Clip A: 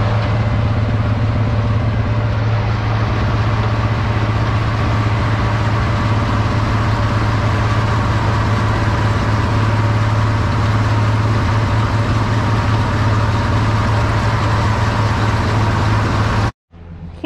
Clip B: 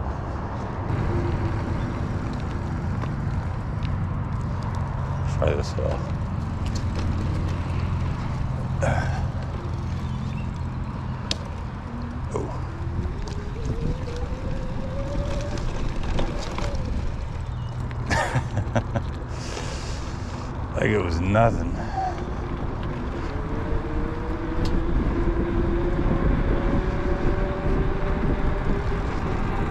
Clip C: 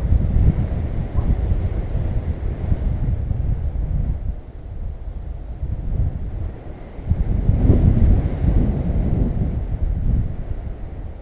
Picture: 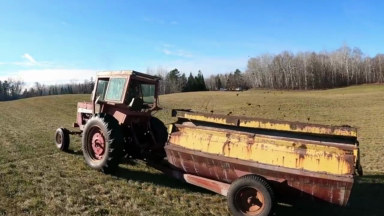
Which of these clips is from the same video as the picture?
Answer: A